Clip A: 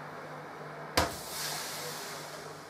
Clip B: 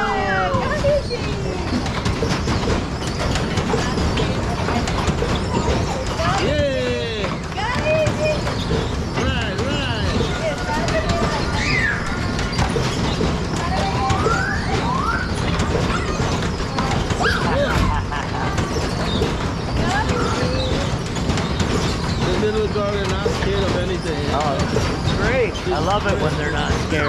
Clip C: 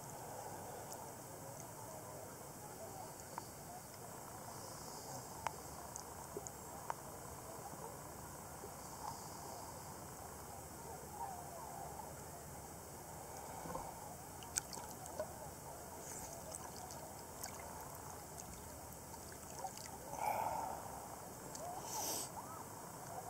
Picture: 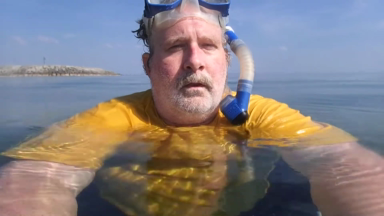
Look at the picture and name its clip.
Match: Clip C